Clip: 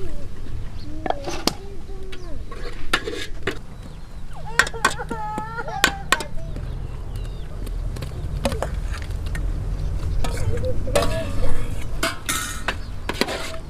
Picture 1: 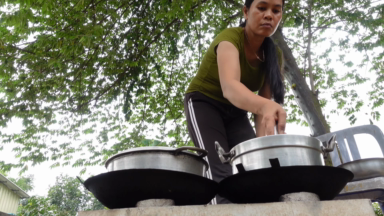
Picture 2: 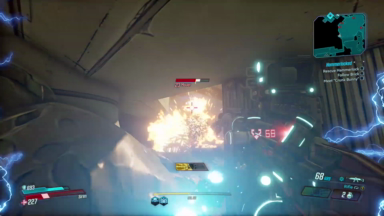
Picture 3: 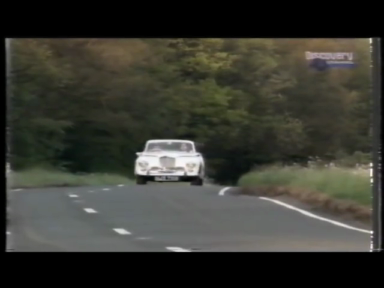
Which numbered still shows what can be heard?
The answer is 1